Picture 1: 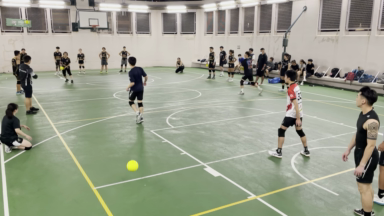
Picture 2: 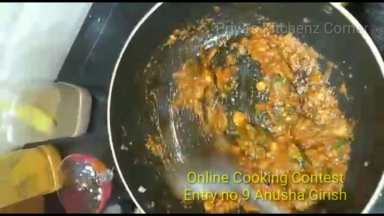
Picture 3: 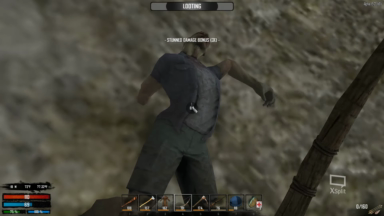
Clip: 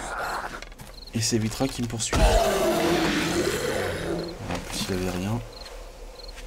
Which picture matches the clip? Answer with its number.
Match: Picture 3